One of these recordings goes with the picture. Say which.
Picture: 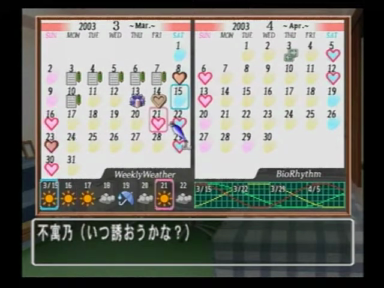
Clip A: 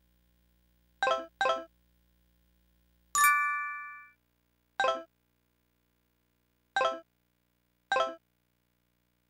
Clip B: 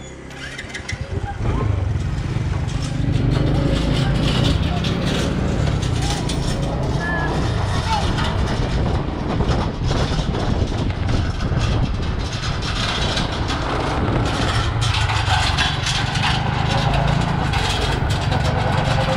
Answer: A